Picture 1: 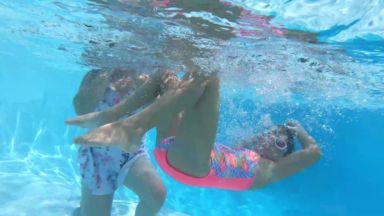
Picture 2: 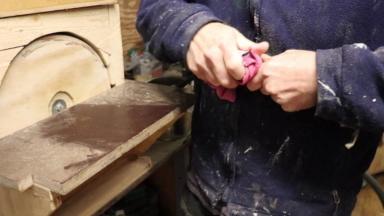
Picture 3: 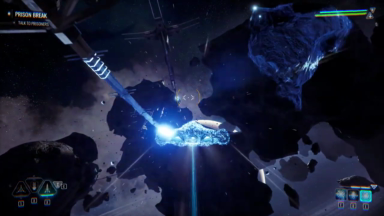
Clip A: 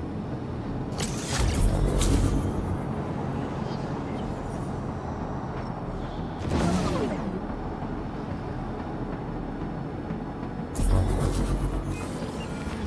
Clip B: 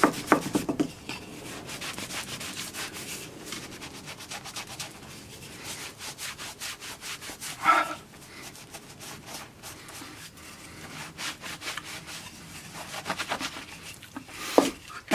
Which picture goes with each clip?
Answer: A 3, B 2